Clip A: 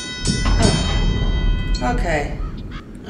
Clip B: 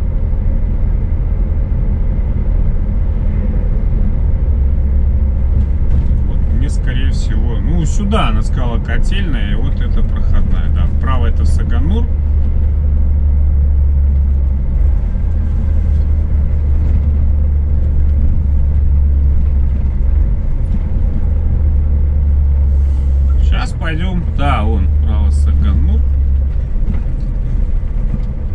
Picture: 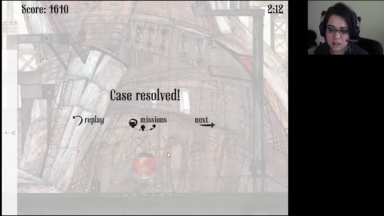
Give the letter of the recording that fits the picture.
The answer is A